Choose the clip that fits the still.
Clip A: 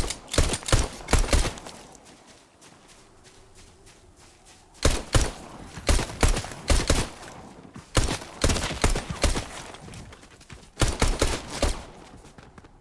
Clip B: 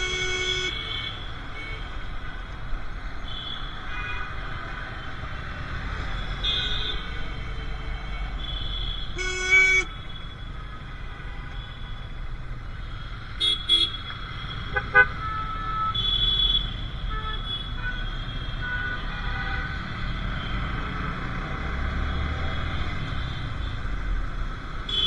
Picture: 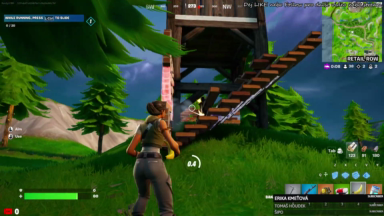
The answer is A